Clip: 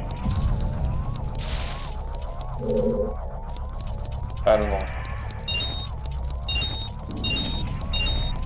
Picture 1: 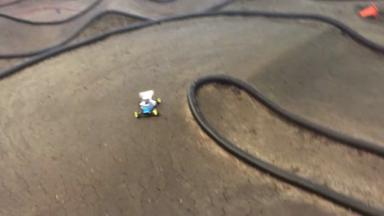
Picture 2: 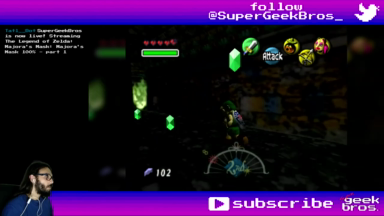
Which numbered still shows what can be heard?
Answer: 2